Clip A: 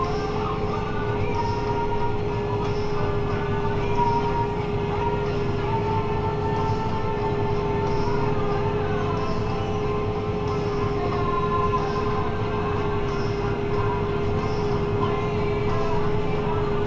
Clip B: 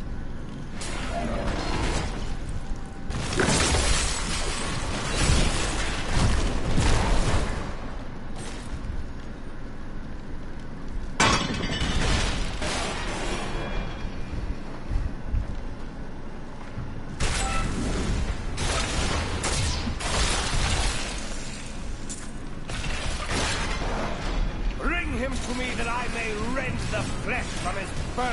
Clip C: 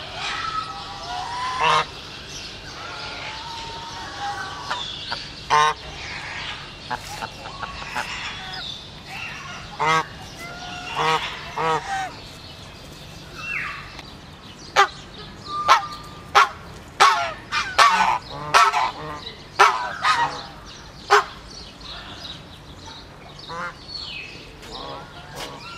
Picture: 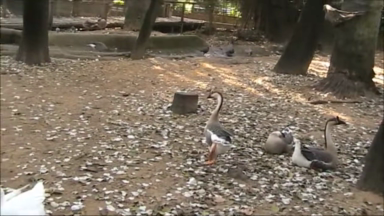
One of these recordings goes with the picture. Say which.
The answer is C